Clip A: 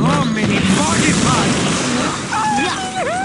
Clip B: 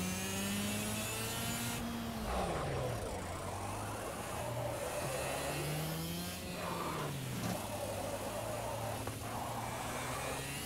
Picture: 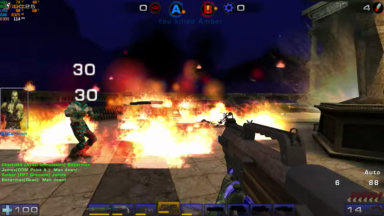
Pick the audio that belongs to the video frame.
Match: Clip A